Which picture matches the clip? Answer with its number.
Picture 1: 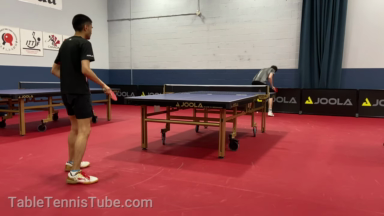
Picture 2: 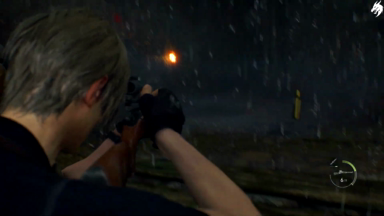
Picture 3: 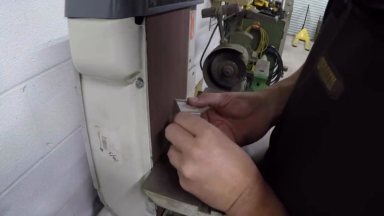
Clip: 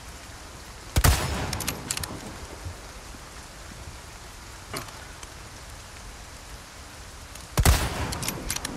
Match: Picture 2